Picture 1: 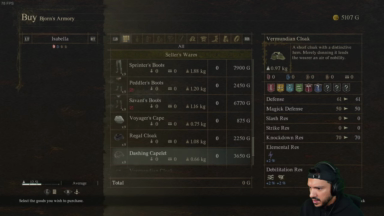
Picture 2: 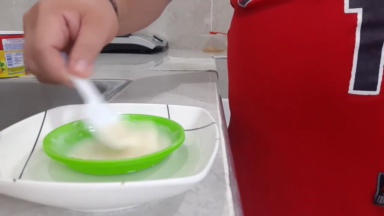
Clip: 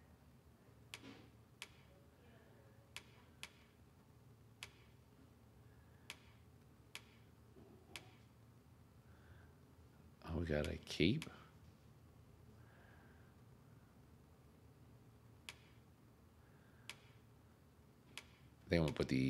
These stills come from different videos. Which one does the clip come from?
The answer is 1